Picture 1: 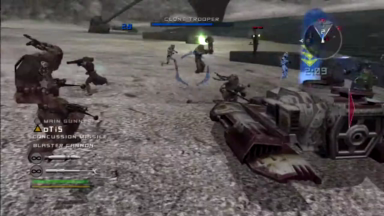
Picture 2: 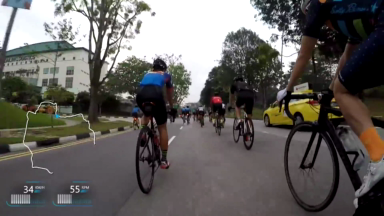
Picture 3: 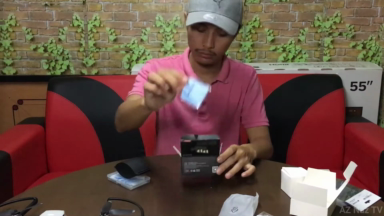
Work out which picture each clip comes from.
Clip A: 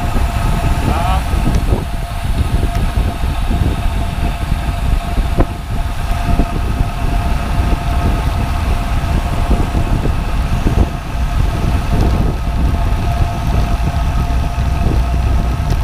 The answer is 2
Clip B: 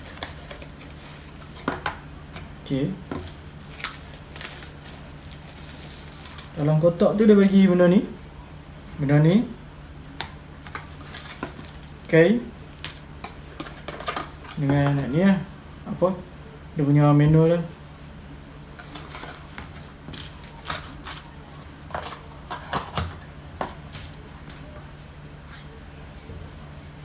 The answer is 3